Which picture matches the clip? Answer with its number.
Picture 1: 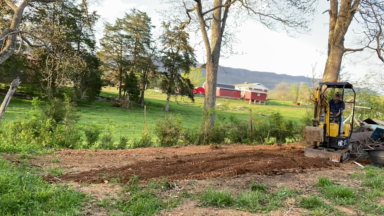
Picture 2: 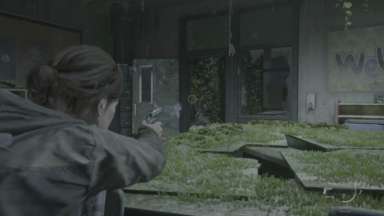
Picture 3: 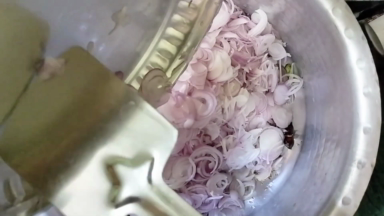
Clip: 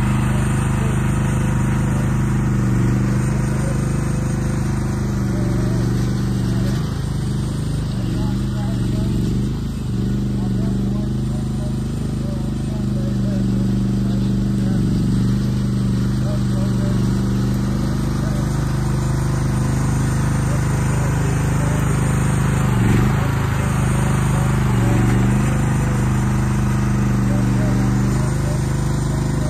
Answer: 1